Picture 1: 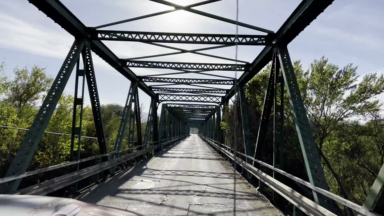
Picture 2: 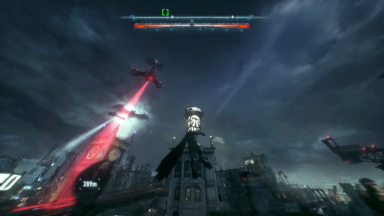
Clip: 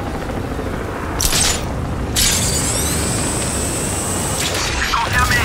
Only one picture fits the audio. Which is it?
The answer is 2